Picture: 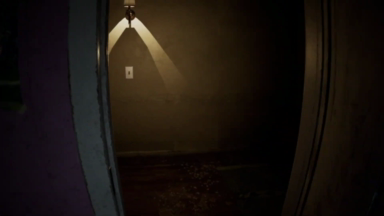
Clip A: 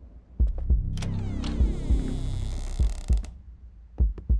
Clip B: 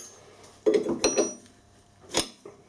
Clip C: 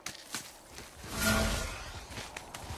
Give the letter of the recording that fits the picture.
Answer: A